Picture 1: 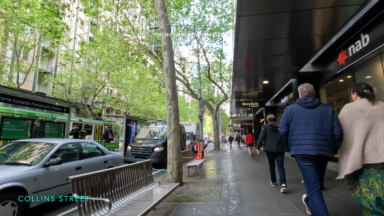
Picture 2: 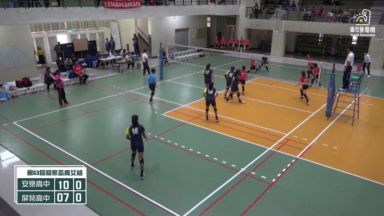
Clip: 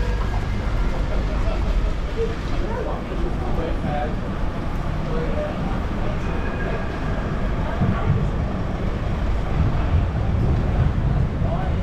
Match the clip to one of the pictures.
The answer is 1